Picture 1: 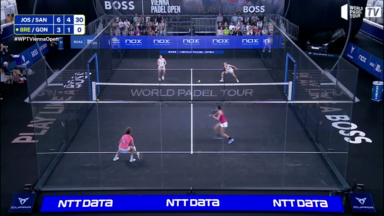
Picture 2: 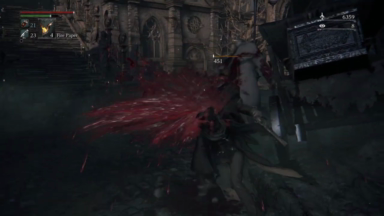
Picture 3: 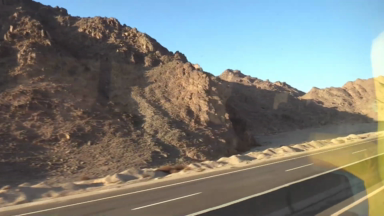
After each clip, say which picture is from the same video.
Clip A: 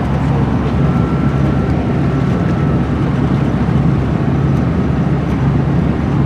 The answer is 3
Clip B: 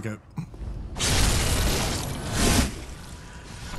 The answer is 2